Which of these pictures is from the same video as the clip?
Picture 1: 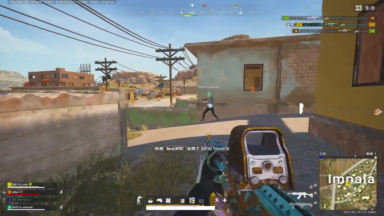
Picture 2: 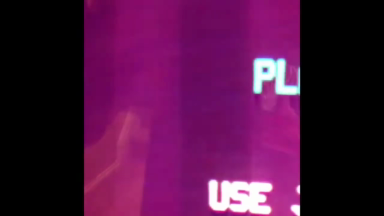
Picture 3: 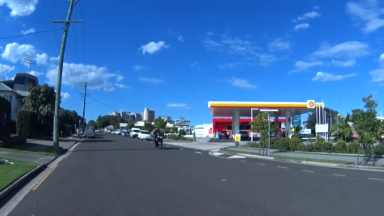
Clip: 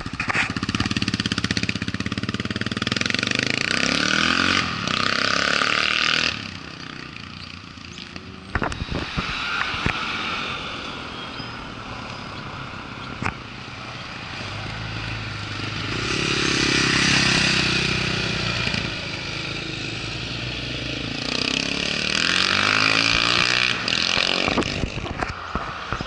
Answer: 3